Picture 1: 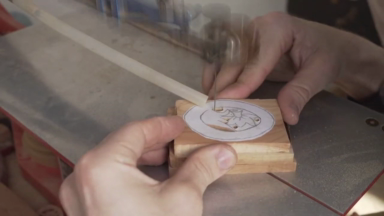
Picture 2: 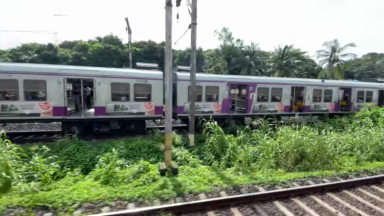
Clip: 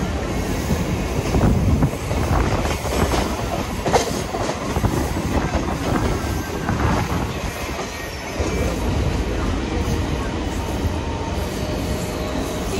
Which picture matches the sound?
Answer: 2